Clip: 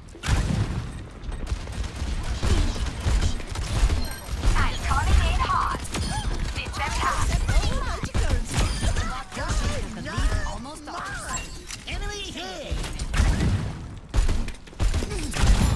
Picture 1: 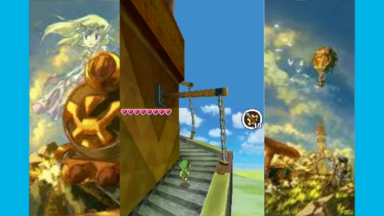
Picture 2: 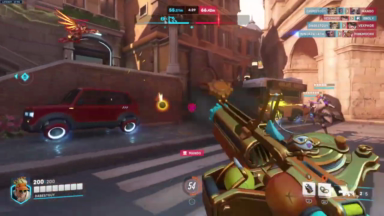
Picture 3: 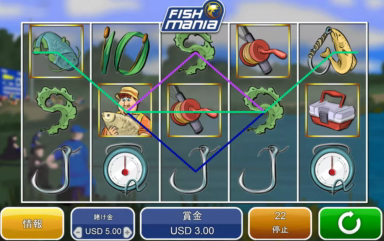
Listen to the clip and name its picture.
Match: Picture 2